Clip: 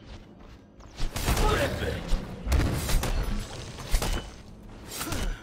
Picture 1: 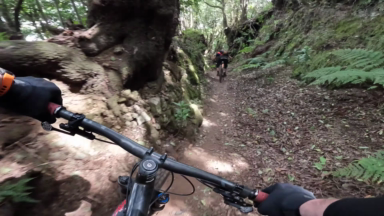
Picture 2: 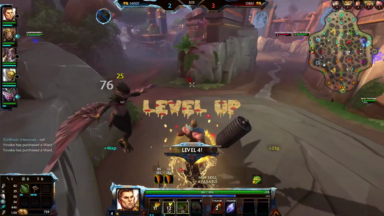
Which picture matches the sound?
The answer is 2